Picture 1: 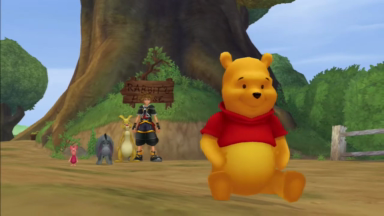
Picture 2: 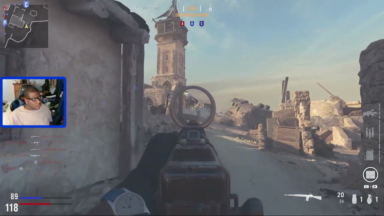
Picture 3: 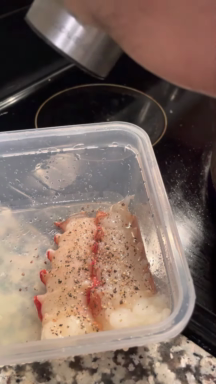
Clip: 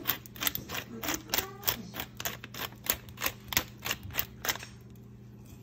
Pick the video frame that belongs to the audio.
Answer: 3